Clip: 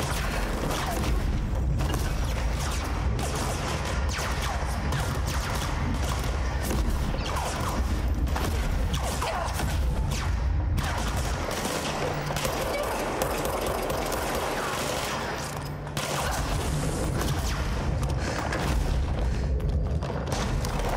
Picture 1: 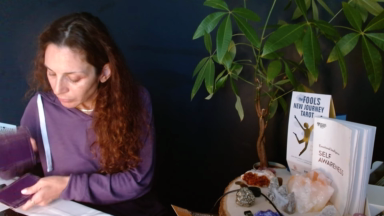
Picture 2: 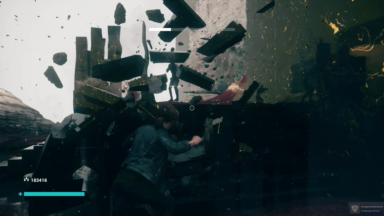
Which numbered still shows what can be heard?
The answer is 2